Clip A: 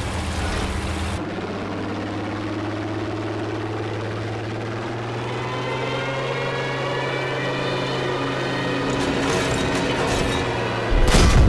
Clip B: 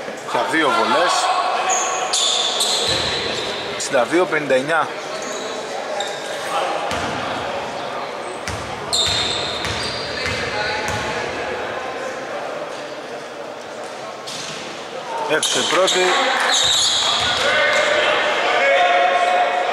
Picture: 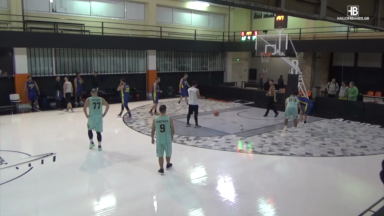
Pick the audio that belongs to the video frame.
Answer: B